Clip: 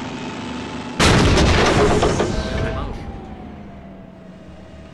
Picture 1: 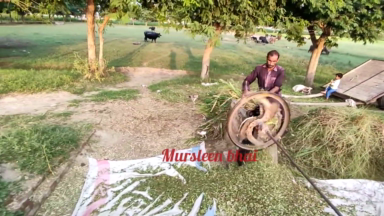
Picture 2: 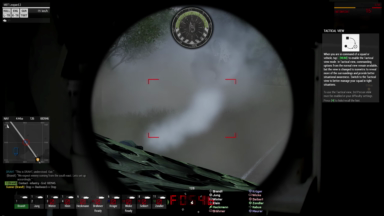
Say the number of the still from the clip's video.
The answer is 2